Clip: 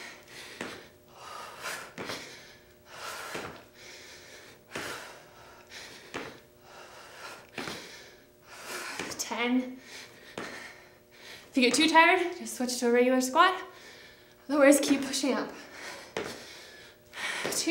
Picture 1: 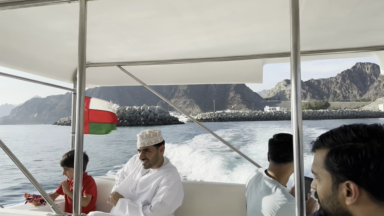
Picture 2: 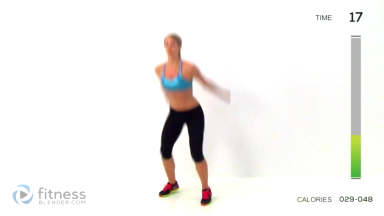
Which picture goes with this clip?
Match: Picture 2